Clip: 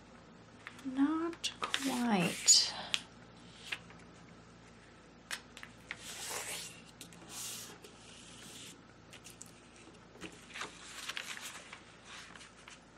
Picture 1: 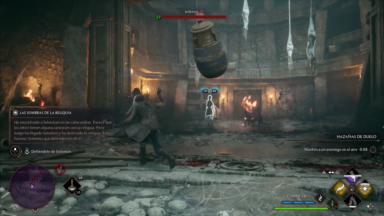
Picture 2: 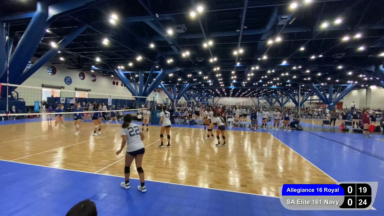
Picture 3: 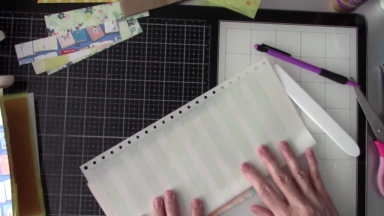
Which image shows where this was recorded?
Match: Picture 3